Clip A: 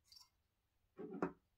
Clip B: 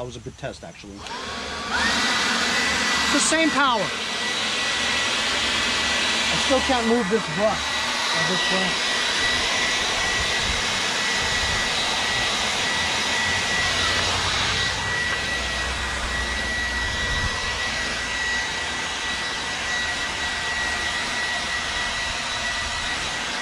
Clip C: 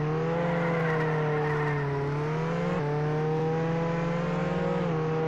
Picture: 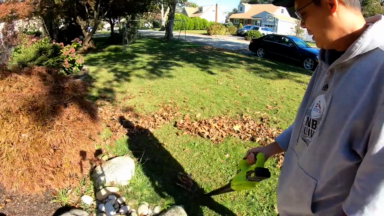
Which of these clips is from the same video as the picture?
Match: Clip B